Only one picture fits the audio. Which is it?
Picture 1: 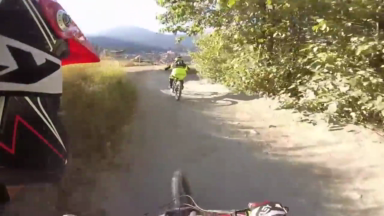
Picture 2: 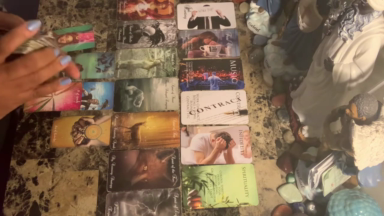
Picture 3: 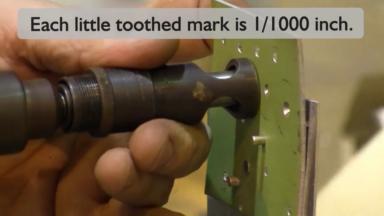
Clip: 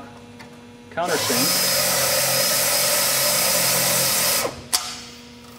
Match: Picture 3